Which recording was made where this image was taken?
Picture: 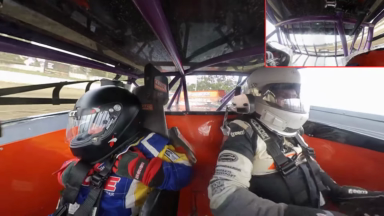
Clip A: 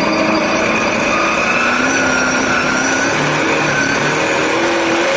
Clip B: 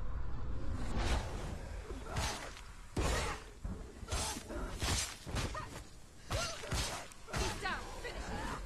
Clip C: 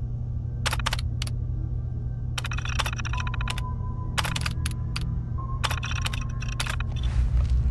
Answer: A